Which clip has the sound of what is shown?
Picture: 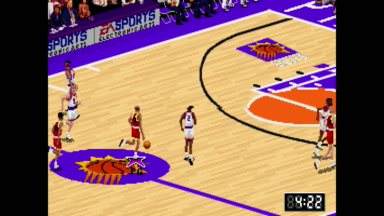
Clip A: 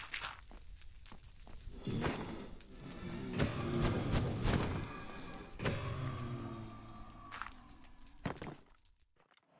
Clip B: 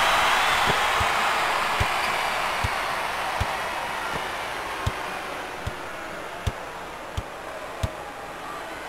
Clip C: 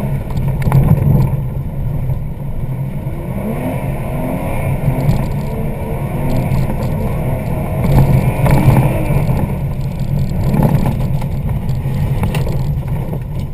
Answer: B